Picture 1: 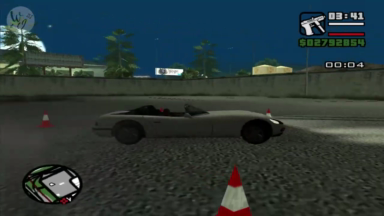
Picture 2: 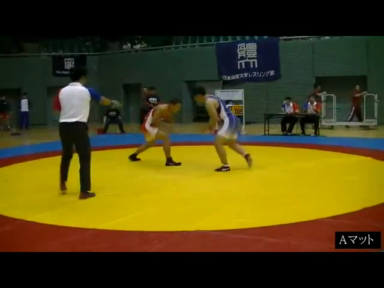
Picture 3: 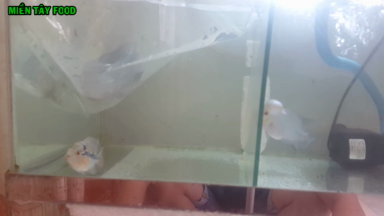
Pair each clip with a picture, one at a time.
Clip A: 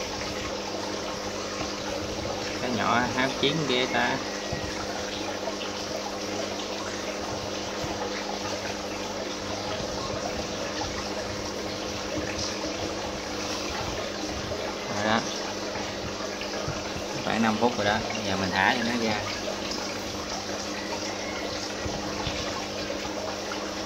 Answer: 3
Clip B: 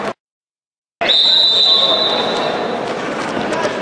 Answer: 2